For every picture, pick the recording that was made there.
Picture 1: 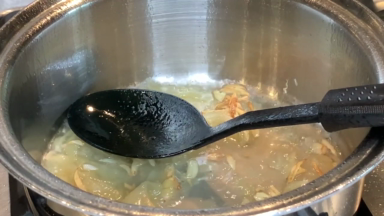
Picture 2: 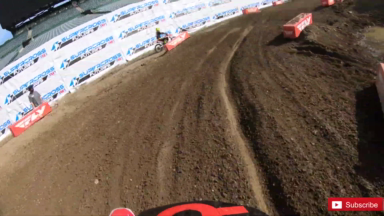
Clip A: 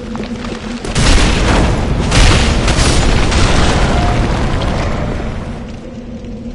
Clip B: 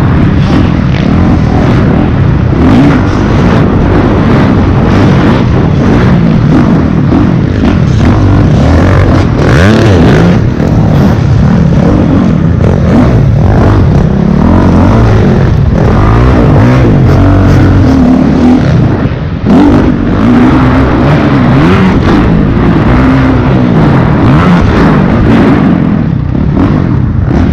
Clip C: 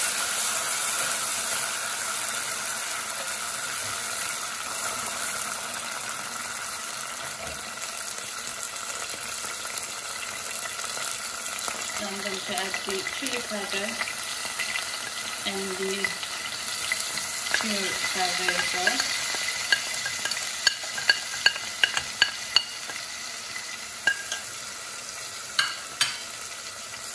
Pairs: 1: C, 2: B